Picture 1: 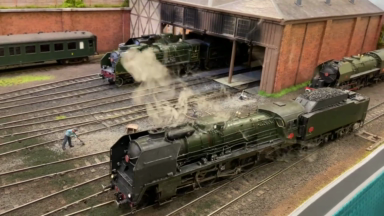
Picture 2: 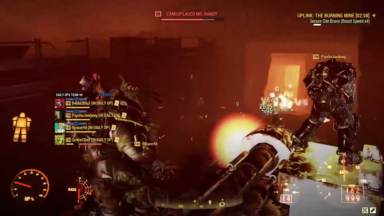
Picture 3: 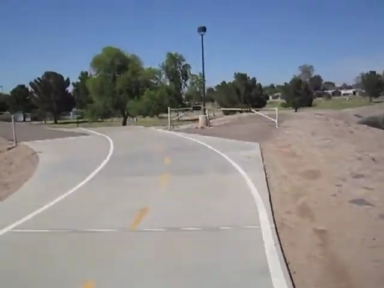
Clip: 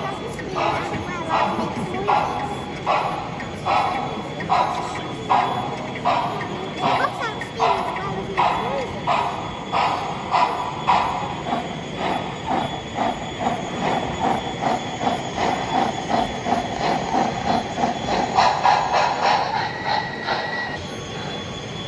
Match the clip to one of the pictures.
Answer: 1